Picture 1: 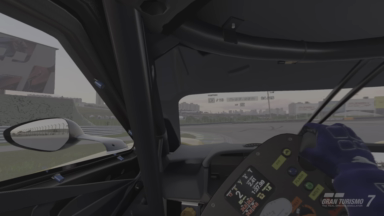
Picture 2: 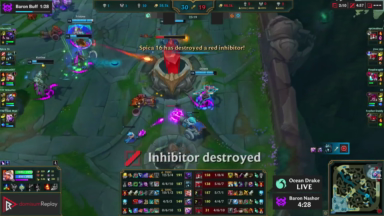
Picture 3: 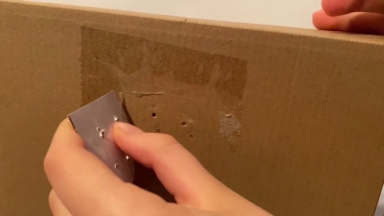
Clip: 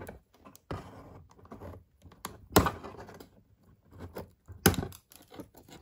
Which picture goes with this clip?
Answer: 3